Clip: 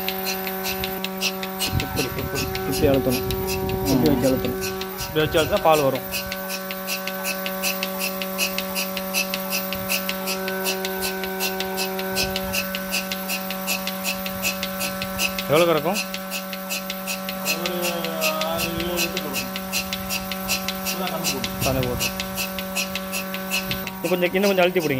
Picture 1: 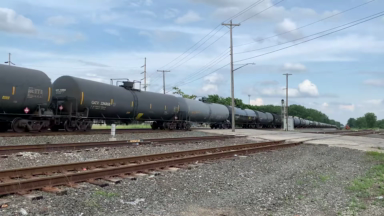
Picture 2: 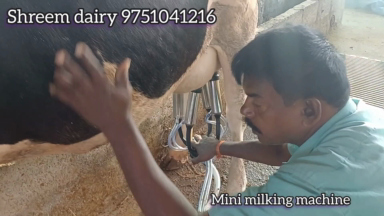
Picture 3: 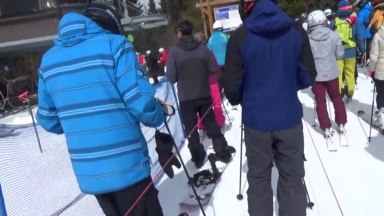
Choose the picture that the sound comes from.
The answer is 2